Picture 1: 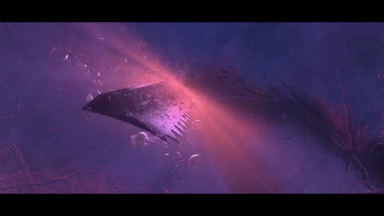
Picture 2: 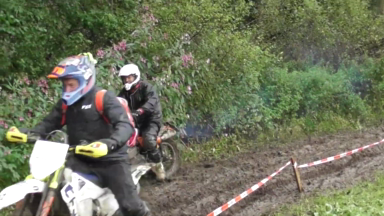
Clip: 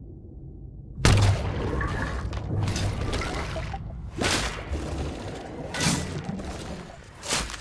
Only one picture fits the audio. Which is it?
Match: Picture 1